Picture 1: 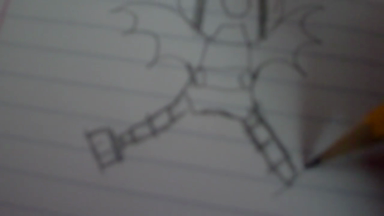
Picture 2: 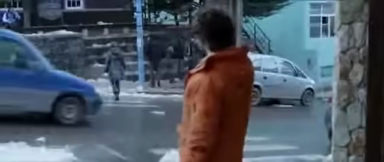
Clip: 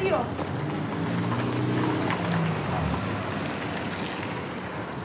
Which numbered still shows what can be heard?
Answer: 2